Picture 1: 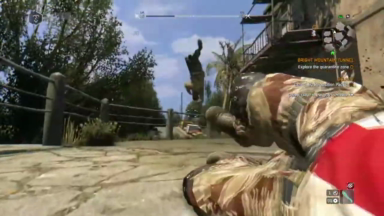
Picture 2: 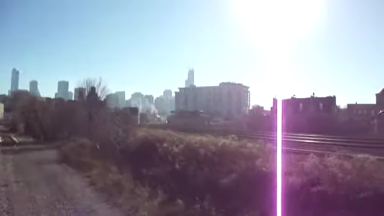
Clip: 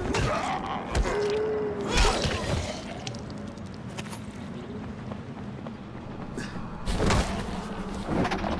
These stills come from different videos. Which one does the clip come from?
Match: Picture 1